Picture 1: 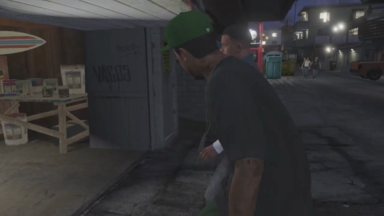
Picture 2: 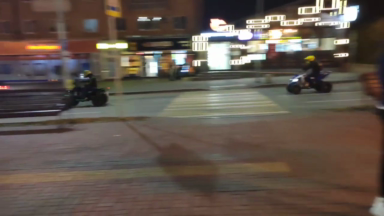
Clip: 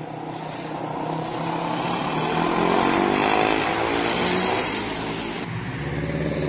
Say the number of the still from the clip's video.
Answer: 2